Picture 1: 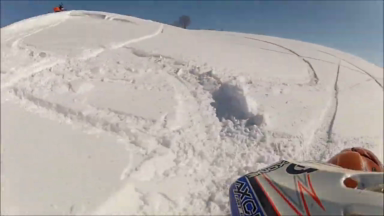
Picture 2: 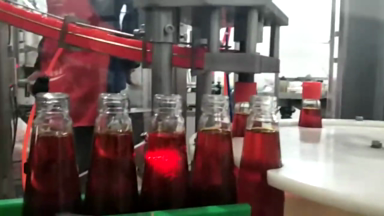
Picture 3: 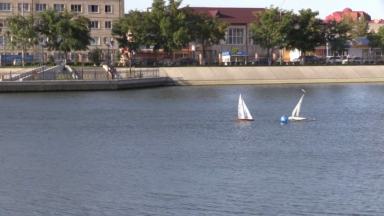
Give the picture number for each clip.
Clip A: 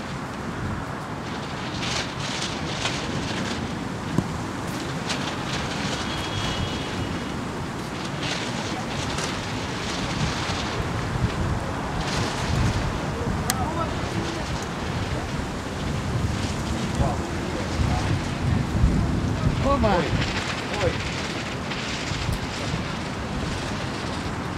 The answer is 3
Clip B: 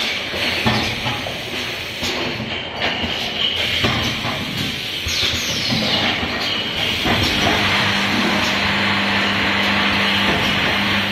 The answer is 2